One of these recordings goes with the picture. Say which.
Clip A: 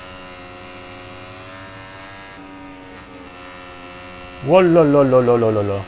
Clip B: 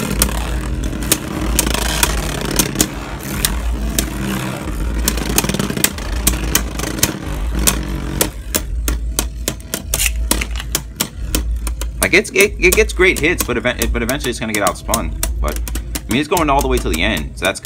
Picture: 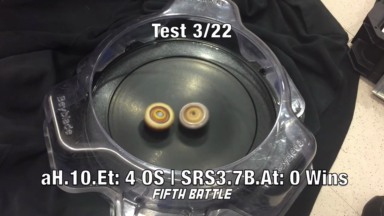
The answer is B